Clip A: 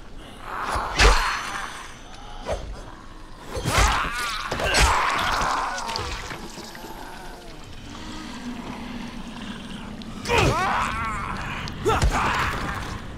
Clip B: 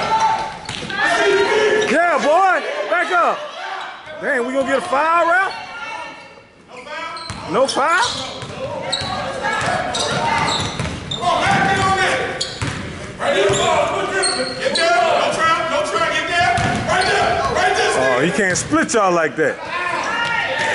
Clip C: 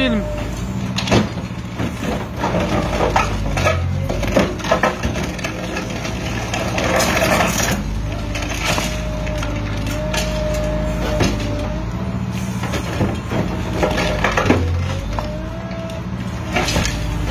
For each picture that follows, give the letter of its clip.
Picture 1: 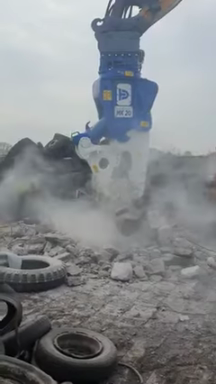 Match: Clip C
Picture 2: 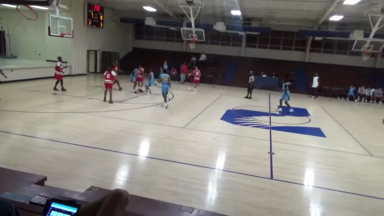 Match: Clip B